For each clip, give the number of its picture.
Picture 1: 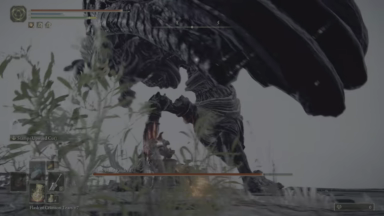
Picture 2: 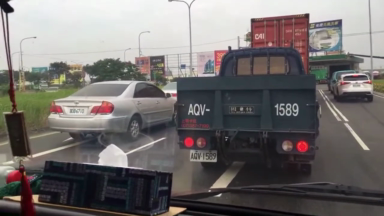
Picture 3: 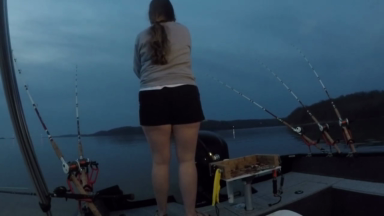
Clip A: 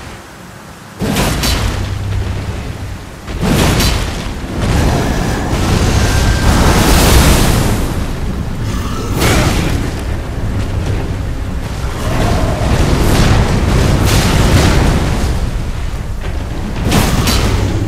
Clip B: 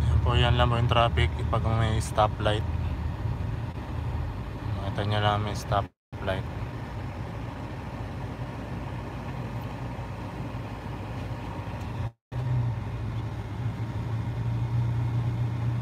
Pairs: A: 1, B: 2